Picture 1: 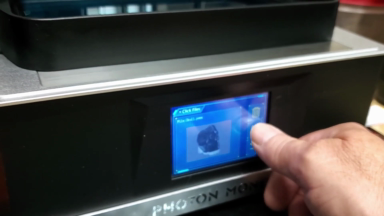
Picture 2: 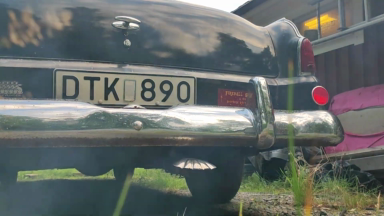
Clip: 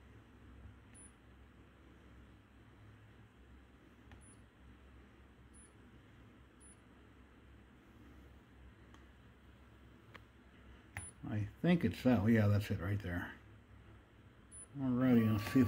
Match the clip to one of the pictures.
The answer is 1